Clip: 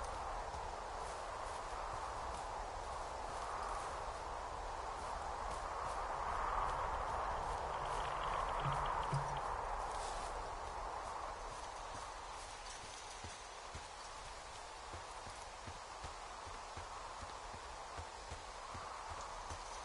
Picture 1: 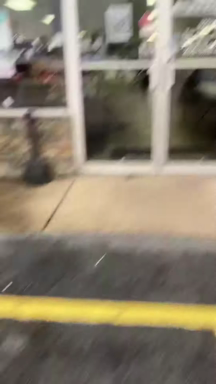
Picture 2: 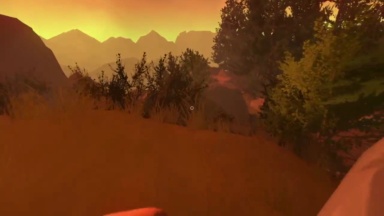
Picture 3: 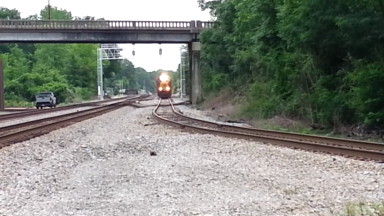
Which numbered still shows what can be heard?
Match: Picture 2